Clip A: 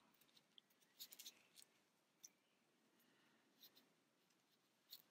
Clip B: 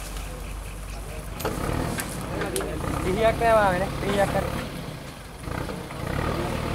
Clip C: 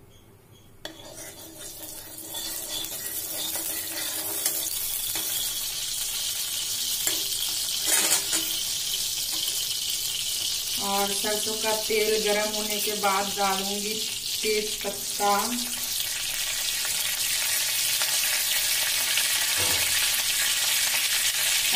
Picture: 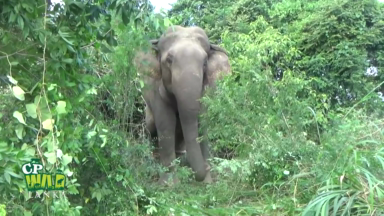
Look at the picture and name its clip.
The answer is B